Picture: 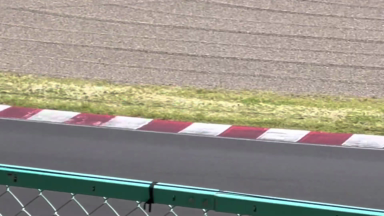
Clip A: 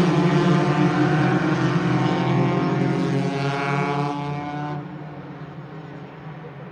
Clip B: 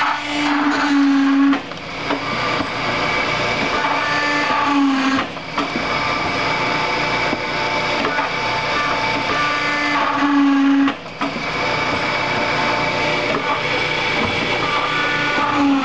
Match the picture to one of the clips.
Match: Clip A